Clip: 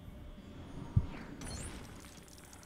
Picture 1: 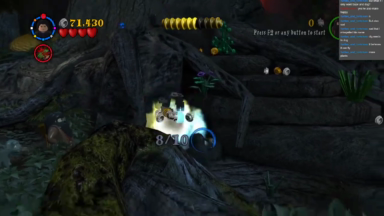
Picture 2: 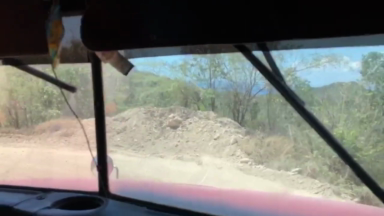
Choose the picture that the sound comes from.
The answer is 1